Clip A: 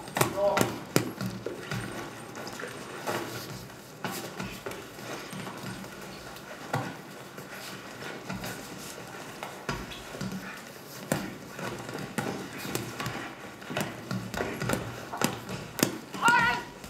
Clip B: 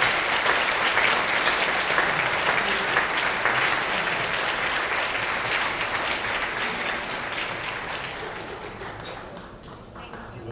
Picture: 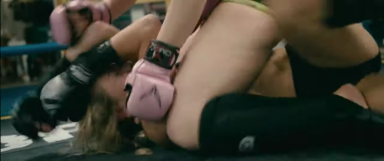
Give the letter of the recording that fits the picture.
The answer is A